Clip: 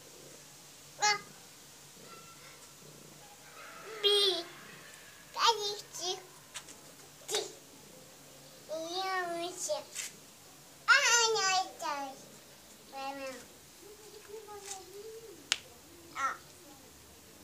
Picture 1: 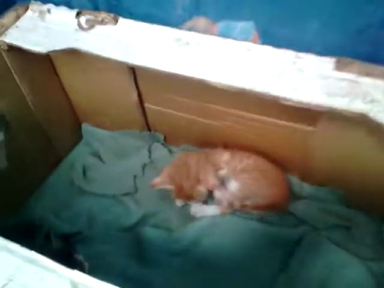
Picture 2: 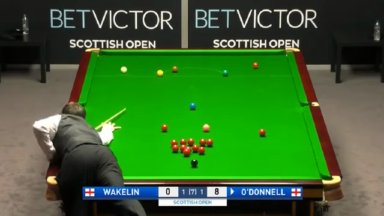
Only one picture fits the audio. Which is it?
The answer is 1